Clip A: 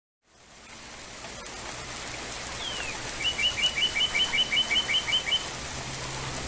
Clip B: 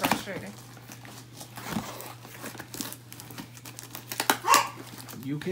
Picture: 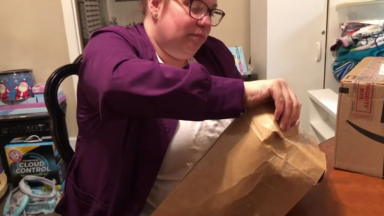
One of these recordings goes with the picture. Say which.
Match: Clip B